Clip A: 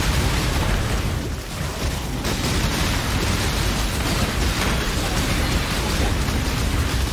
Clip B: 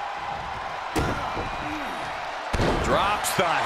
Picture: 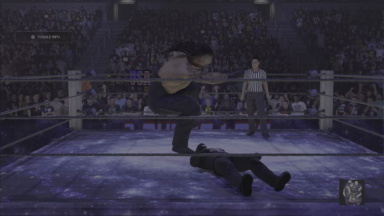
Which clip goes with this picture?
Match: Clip B